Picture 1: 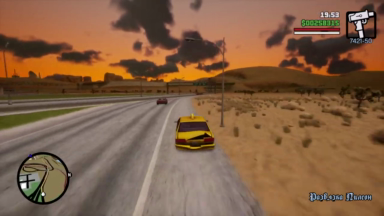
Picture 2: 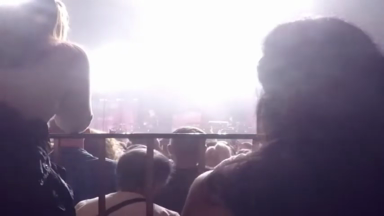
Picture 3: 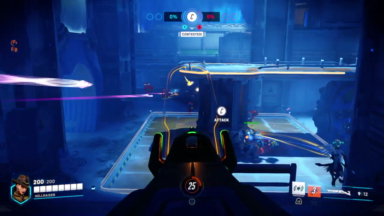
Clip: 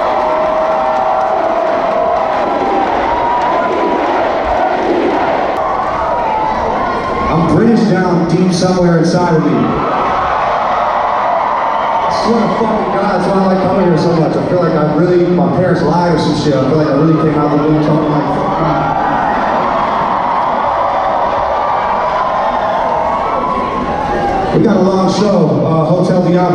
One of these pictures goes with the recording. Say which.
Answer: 2